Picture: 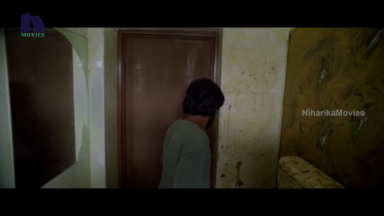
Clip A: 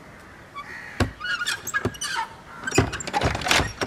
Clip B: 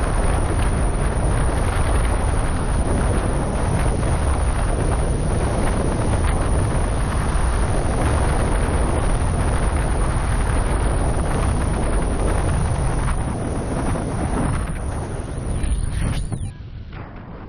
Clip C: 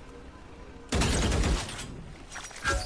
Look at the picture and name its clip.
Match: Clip A